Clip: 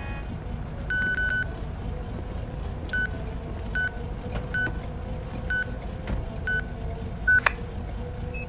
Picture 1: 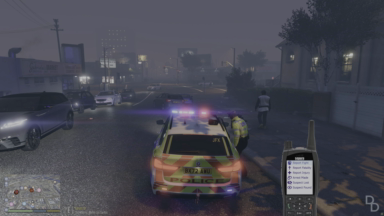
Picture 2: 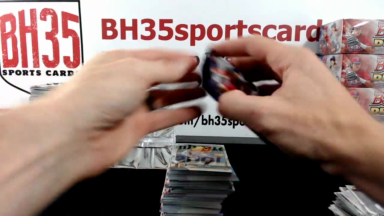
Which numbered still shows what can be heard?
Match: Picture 1